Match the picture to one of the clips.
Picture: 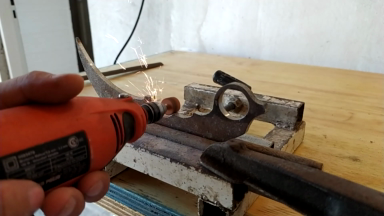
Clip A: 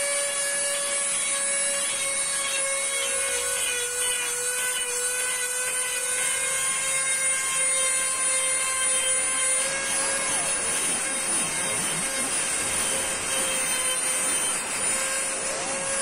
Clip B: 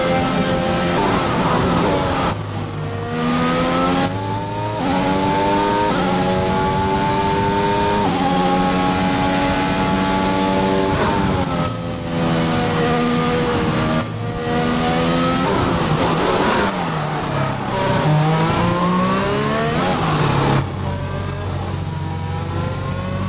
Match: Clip A